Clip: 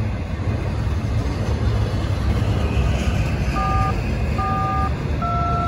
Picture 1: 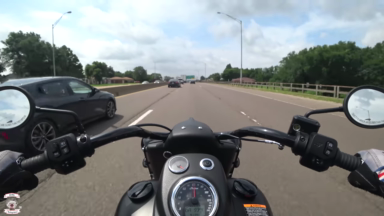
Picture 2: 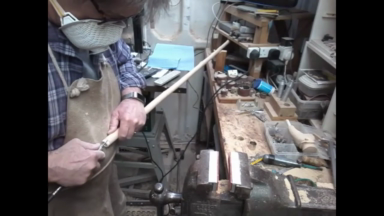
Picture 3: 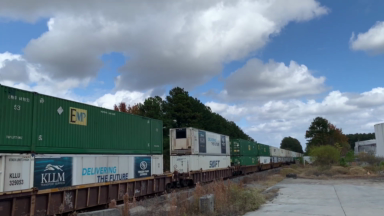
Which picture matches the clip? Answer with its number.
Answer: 3